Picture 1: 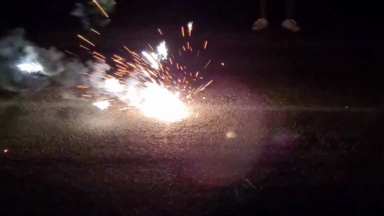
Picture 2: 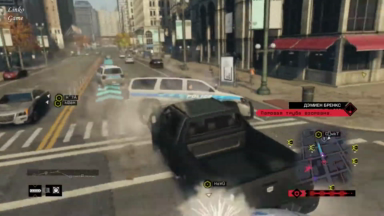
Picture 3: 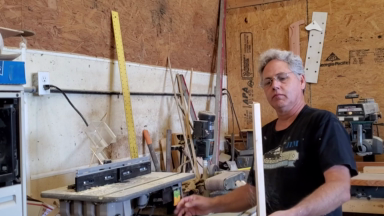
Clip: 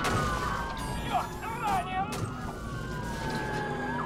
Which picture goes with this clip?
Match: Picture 2